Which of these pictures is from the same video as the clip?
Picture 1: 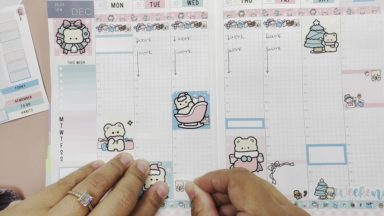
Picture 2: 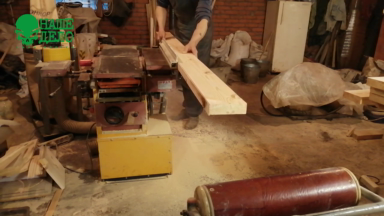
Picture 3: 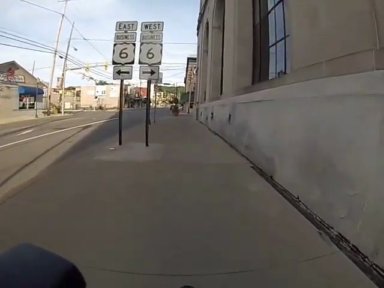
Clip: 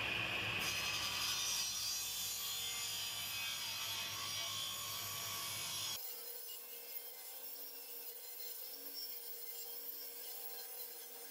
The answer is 2